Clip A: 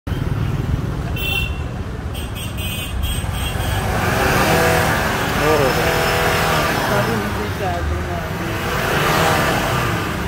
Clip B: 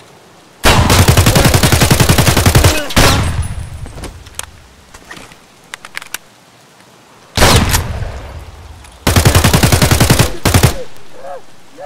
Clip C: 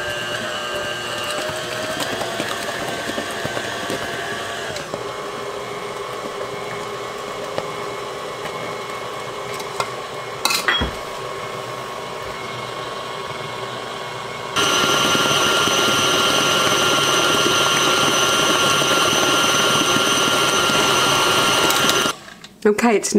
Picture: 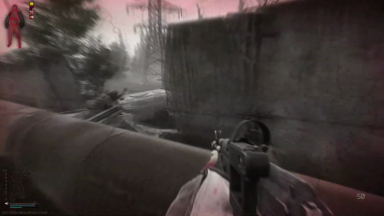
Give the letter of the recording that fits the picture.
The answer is B